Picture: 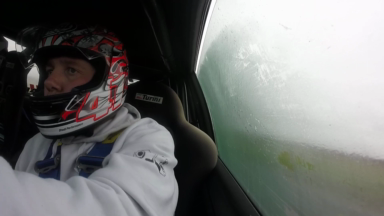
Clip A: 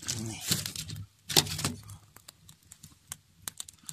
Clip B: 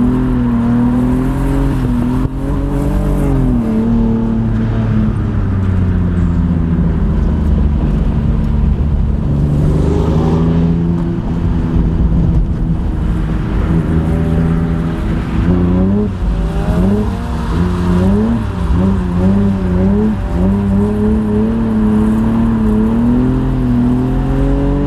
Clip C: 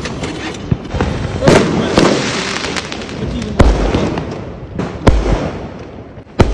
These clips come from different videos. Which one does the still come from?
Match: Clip B